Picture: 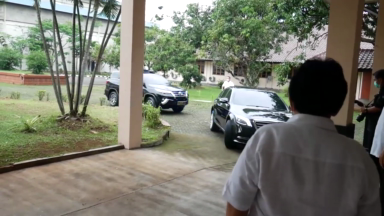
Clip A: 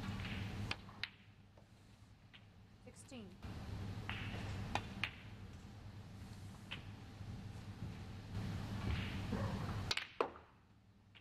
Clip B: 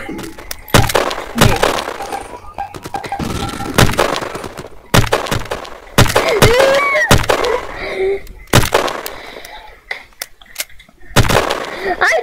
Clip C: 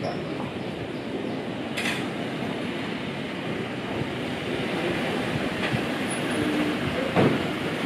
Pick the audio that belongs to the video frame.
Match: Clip C